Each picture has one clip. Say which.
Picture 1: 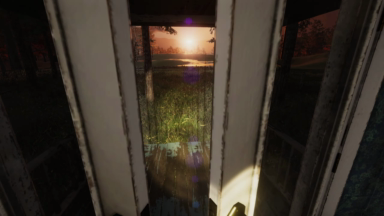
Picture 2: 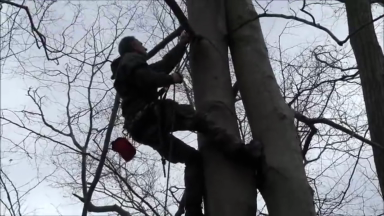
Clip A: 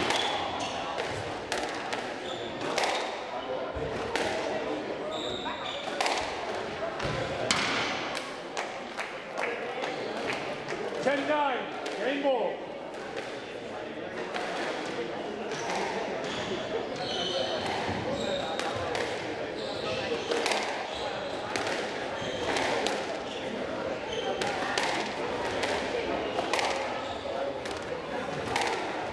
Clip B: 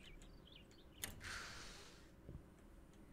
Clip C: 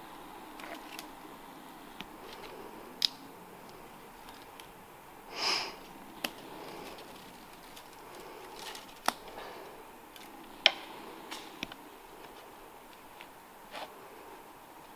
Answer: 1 B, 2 C